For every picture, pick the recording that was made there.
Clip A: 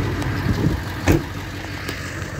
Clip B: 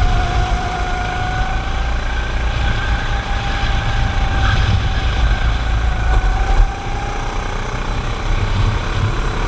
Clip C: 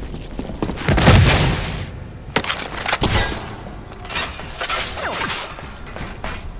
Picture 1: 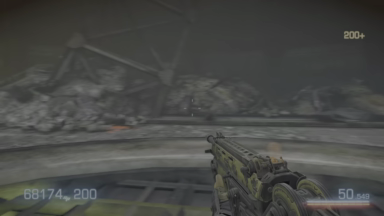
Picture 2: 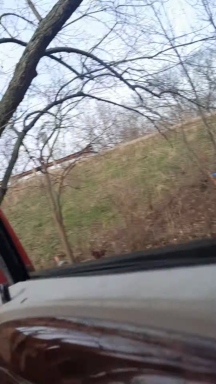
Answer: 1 C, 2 A